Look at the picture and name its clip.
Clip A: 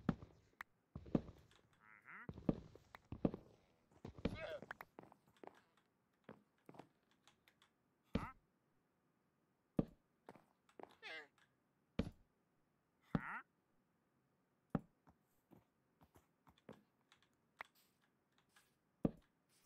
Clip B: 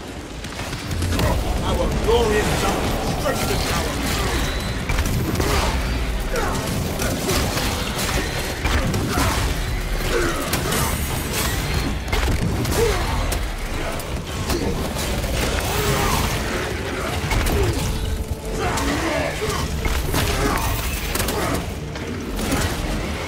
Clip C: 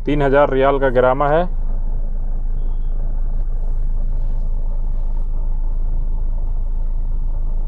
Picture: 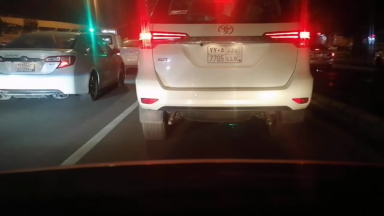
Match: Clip C